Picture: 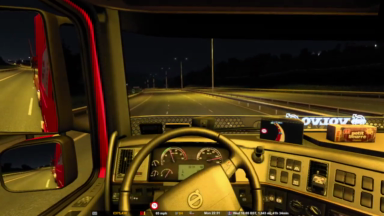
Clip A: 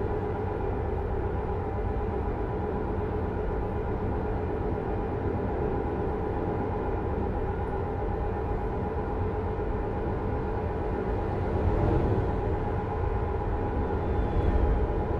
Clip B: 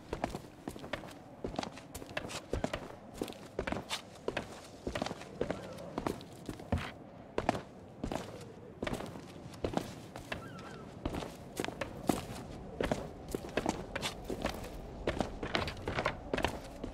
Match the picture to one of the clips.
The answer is A